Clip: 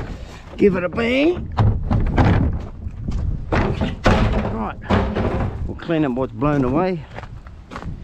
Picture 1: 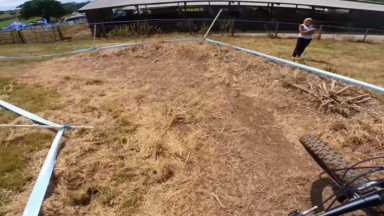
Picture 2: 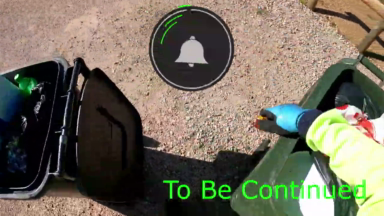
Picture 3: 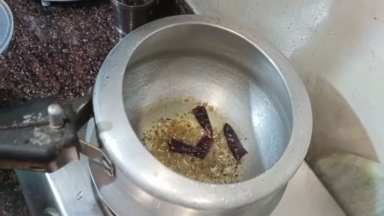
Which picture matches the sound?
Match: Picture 2